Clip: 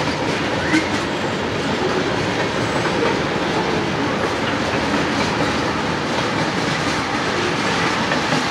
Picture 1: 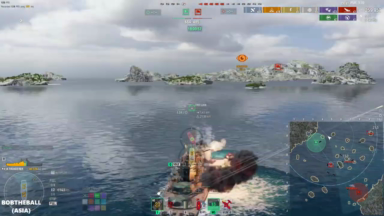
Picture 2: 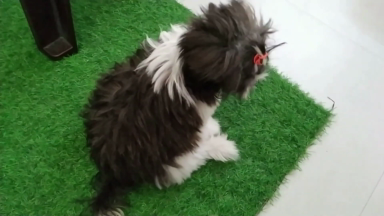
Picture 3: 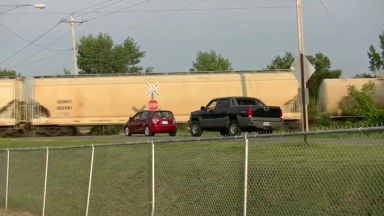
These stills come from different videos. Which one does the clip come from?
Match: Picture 3